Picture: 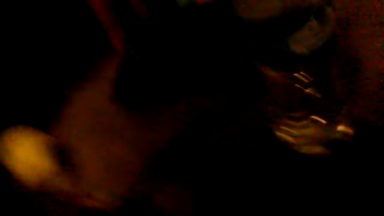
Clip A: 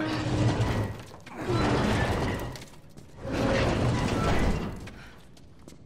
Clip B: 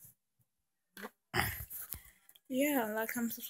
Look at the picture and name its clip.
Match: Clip B